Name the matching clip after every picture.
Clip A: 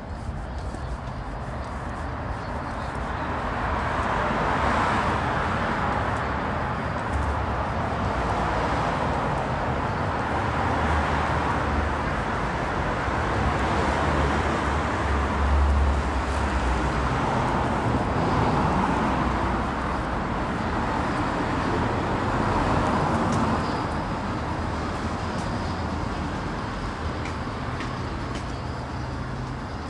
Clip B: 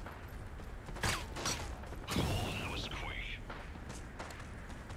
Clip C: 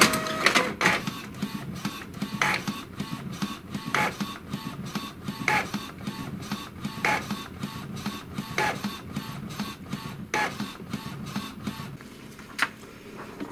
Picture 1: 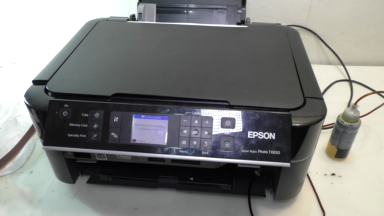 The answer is C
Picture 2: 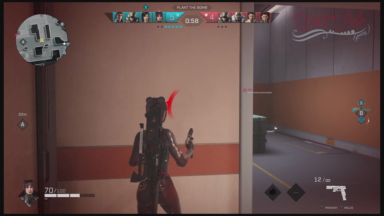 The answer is B